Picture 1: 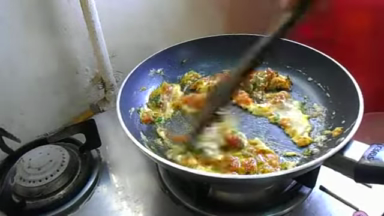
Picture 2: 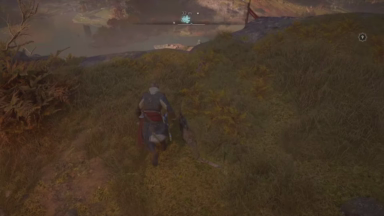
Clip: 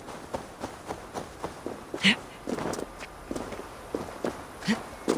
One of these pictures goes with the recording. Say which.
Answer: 2